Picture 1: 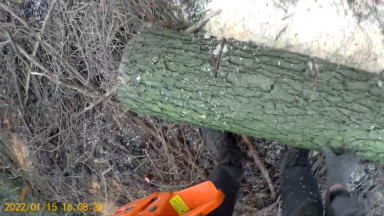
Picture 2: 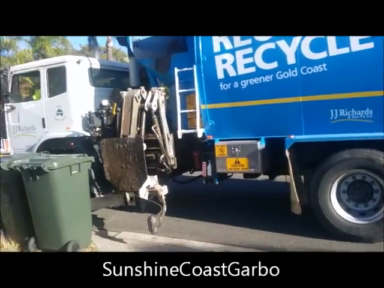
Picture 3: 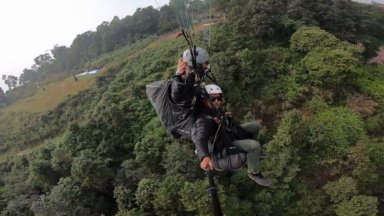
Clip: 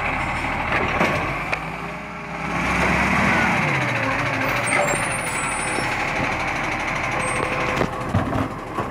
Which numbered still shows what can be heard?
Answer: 2